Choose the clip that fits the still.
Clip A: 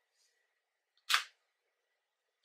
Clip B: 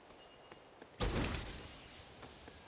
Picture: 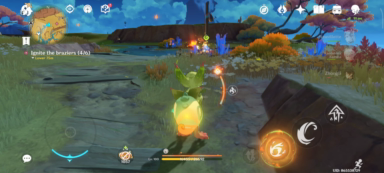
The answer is B